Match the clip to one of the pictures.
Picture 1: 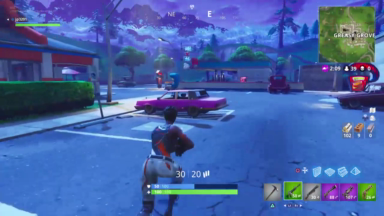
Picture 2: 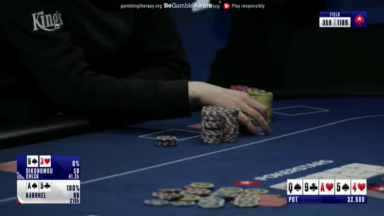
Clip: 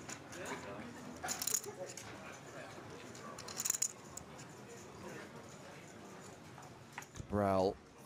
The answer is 2